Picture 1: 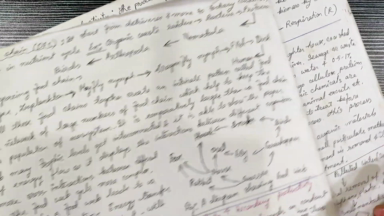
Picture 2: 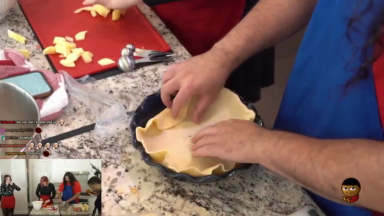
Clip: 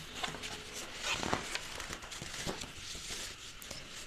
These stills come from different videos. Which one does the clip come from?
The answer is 1